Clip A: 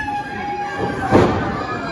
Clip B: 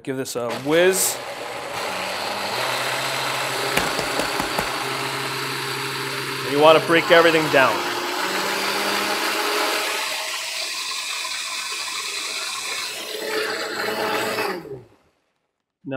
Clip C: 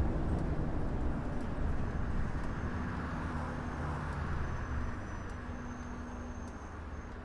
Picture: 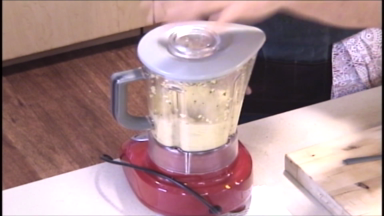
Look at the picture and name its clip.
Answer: B